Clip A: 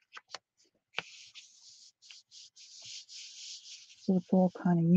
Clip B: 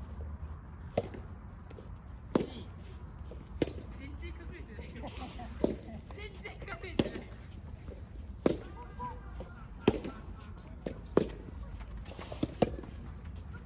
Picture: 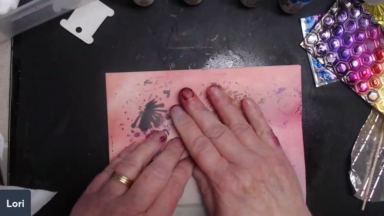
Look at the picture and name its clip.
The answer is A